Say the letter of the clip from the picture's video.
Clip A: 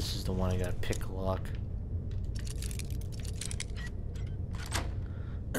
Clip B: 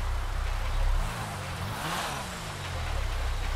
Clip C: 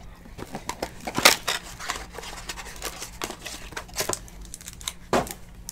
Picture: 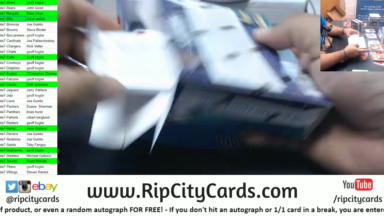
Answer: C